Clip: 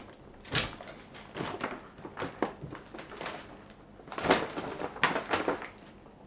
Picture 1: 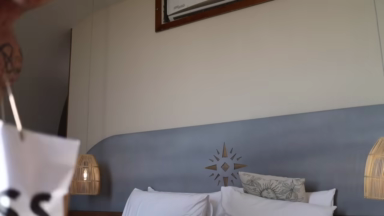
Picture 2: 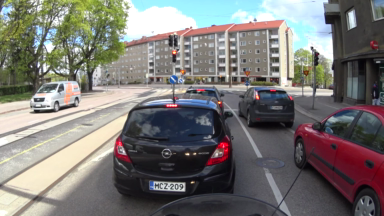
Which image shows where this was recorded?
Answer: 1